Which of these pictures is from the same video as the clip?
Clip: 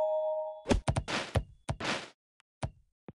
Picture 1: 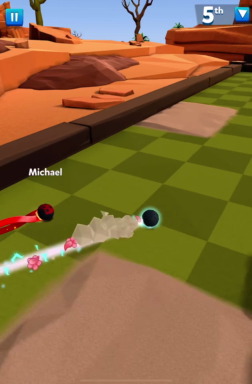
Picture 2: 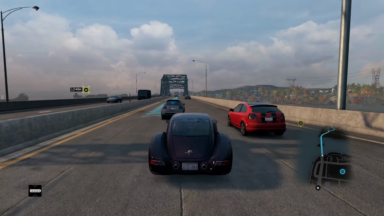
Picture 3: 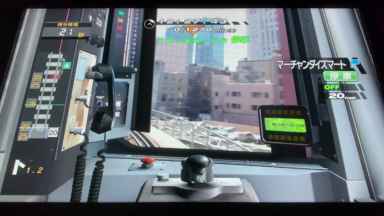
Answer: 1